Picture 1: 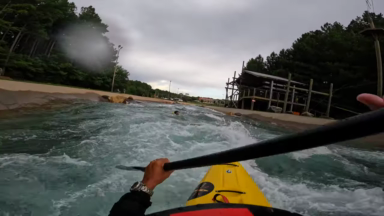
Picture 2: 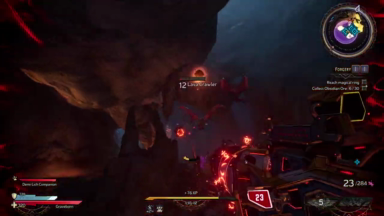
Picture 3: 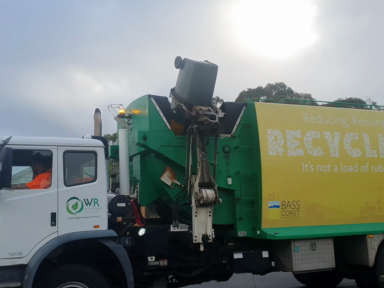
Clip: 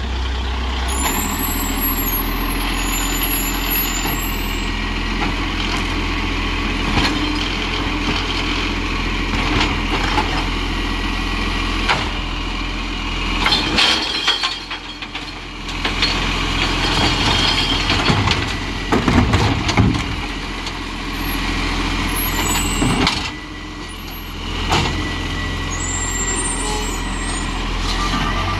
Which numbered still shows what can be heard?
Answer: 3